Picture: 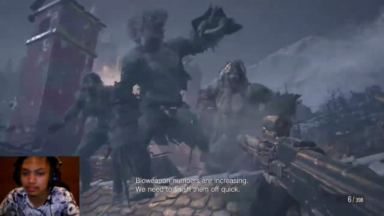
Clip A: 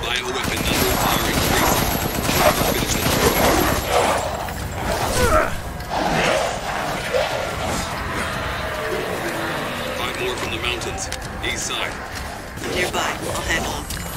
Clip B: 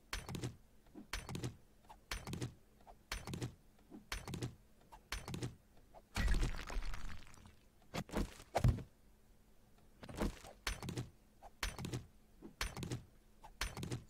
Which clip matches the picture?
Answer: A